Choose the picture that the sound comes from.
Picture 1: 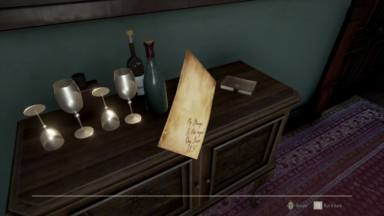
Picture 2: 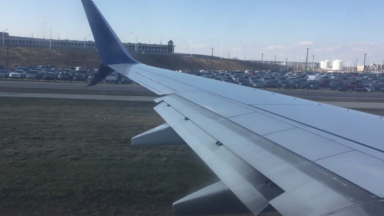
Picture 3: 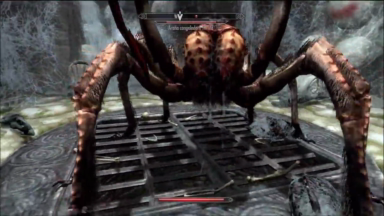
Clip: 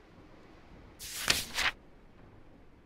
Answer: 1